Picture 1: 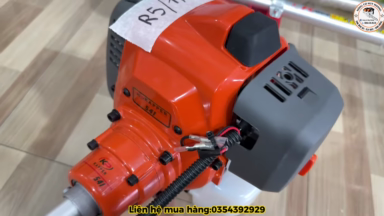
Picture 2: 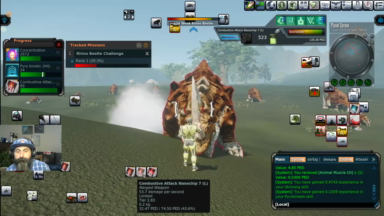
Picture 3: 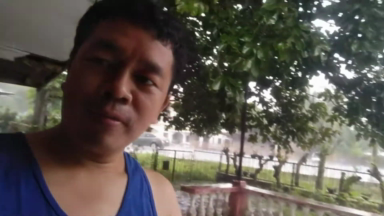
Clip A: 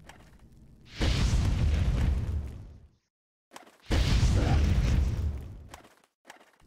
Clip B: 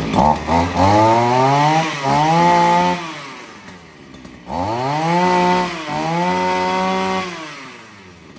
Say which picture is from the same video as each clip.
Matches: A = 2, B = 1